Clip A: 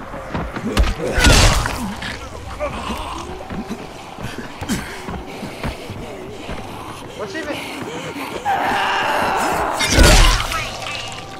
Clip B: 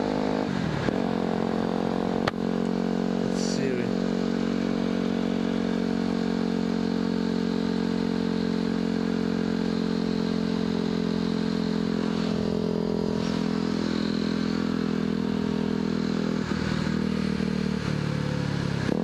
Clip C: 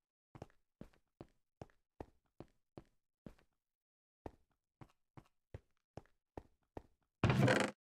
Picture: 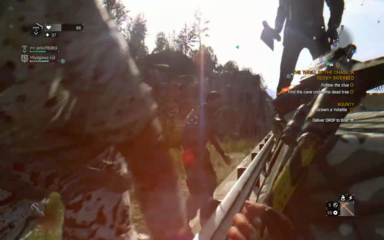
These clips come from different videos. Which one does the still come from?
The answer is A